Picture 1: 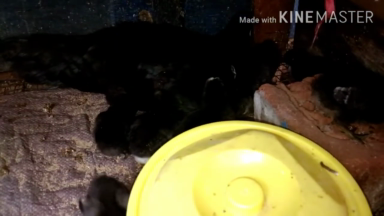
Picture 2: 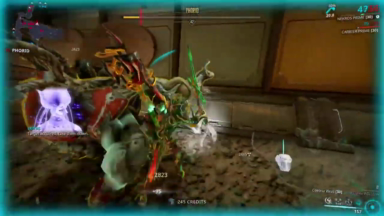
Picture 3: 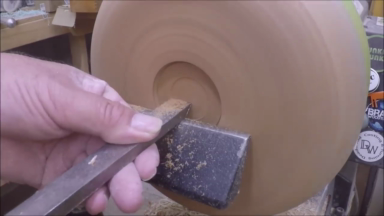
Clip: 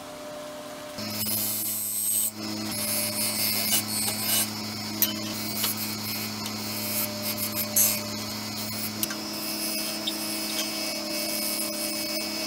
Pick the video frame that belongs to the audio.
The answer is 3